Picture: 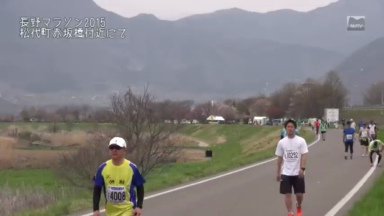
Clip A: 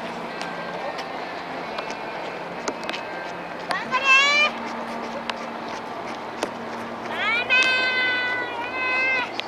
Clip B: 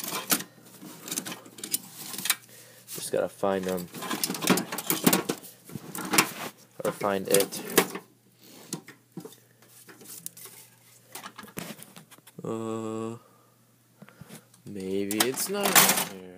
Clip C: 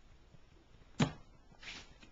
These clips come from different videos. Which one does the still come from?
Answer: A